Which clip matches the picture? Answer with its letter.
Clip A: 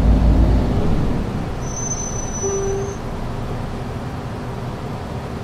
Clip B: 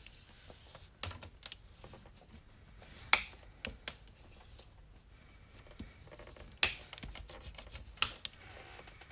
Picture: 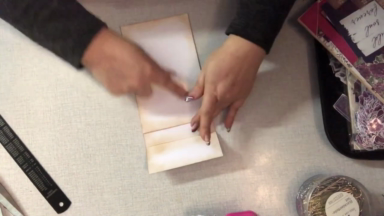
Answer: B